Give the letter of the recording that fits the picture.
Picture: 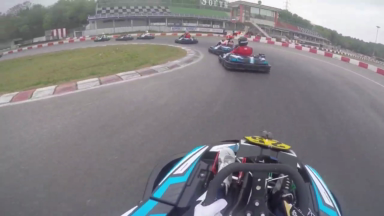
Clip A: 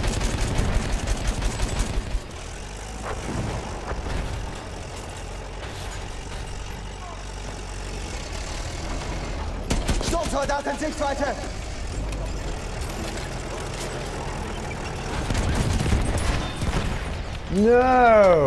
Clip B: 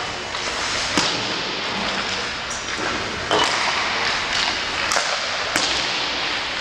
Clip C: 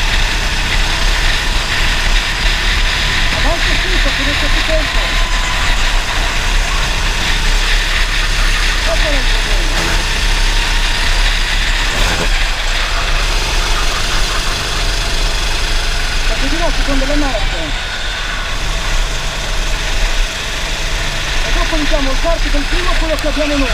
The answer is C